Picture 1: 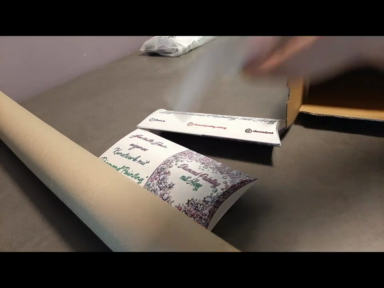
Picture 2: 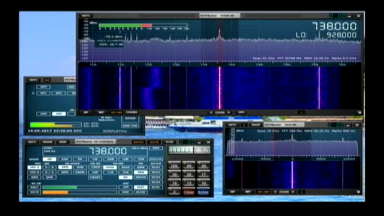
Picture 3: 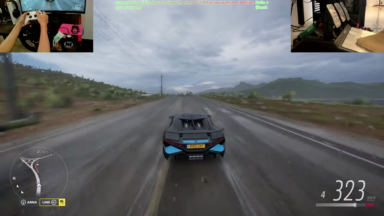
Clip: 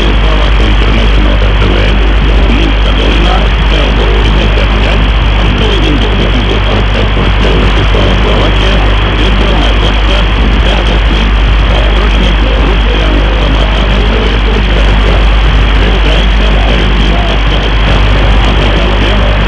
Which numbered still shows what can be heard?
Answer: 2